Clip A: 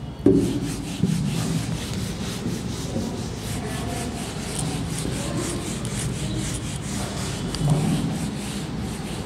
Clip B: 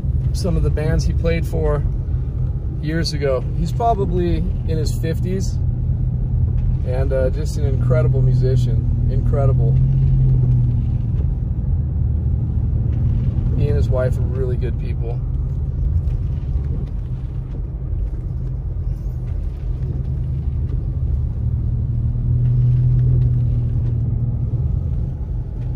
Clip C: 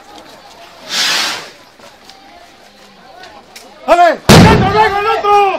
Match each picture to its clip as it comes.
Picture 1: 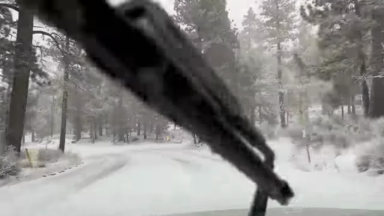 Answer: B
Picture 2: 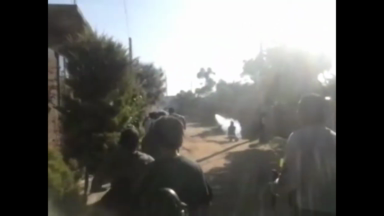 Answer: C